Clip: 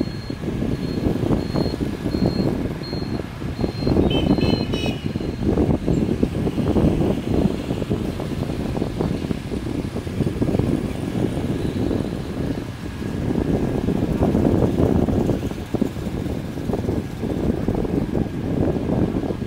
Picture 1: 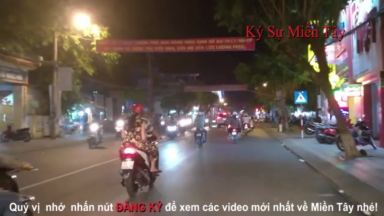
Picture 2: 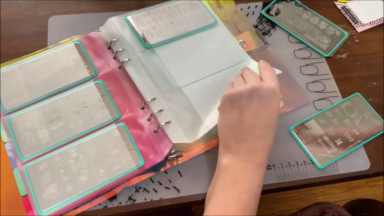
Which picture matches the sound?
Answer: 1